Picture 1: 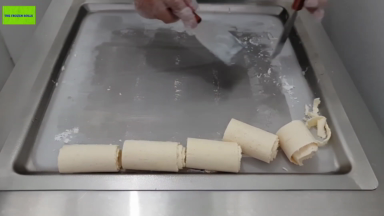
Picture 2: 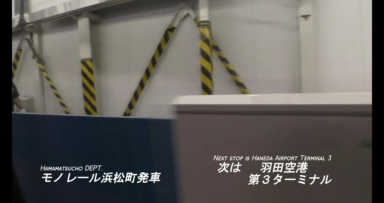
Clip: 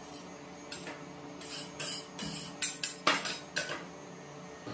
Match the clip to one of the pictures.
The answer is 1